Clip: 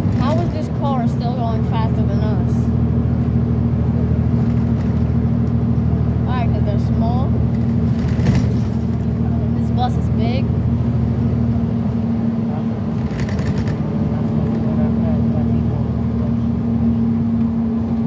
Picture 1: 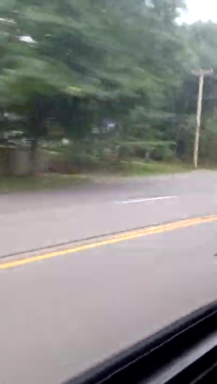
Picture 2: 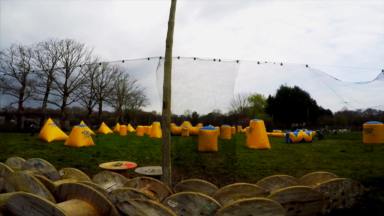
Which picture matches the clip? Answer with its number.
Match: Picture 1